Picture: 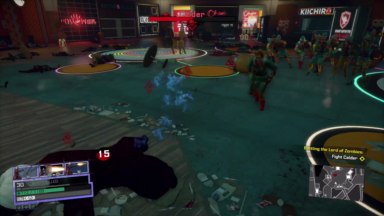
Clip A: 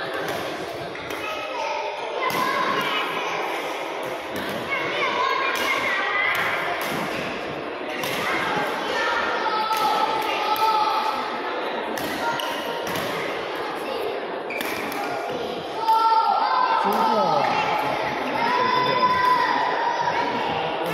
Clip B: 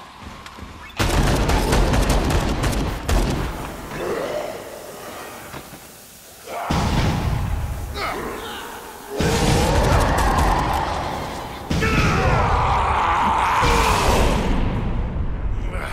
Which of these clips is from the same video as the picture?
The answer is B